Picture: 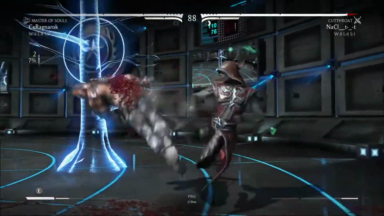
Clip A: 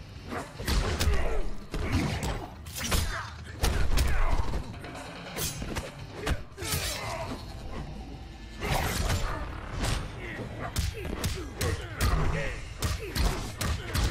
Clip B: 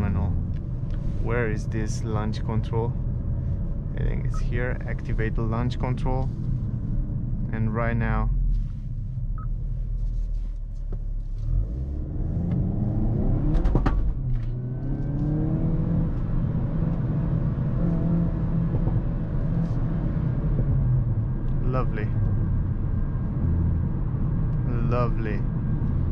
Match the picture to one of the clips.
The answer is A